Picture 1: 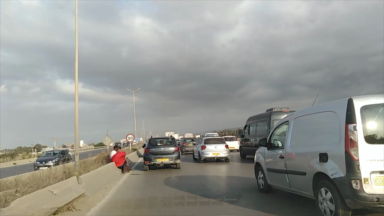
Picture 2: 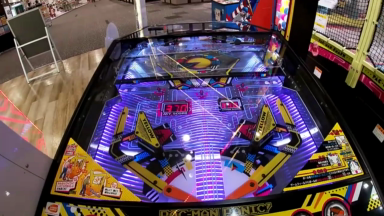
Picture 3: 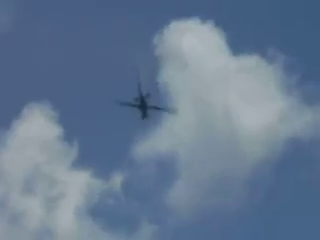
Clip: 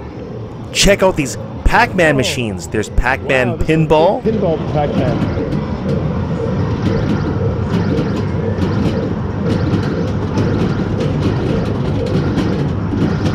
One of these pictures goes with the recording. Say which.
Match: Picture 2